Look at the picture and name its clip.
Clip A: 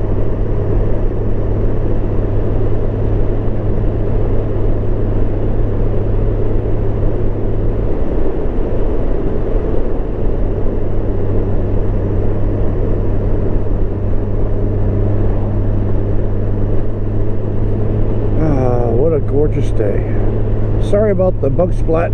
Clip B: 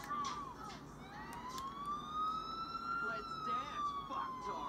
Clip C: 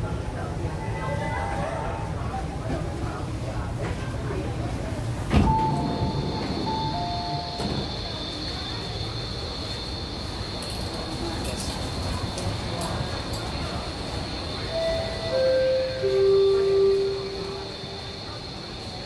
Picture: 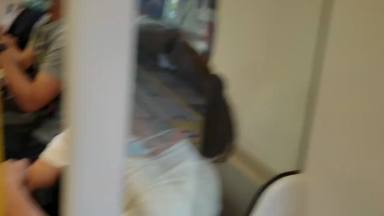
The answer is C